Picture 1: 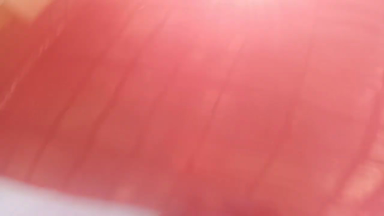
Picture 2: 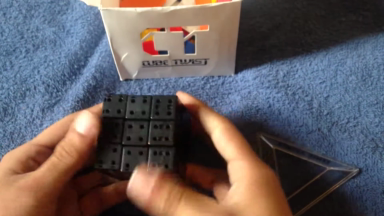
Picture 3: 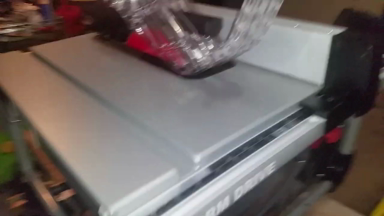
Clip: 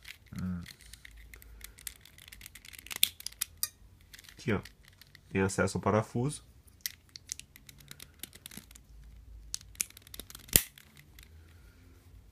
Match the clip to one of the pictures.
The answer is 2